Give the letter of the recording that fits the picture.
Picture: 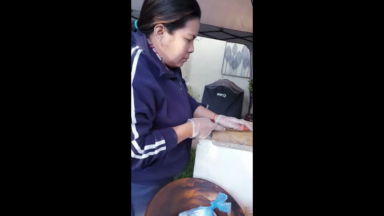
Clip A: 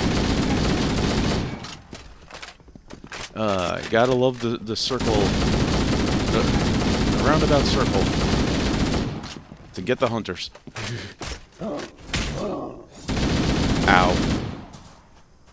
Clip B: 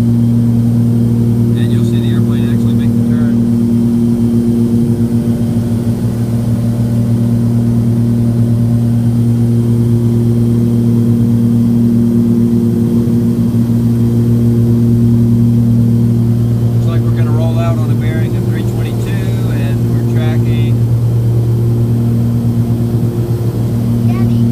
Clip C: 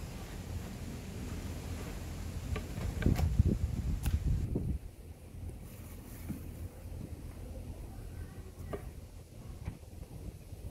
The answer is C